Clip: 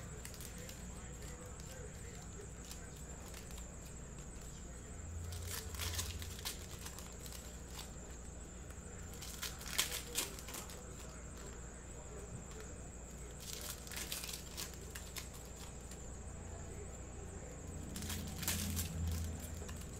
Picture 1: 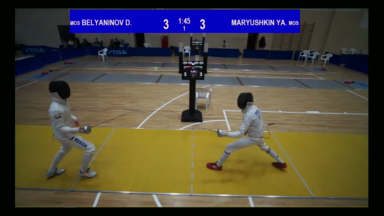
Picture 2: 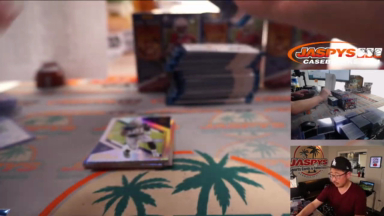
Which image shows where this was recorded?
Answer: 2